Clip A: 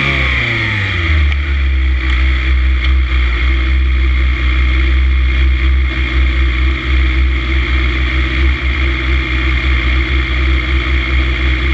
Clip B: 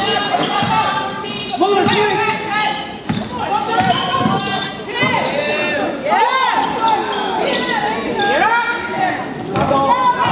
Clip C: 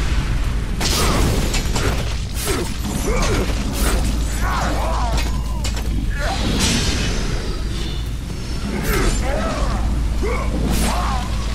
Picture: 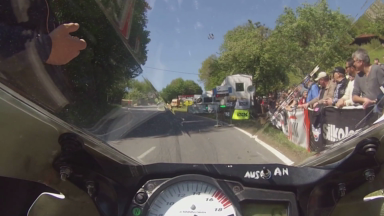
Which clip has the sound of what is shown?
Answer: A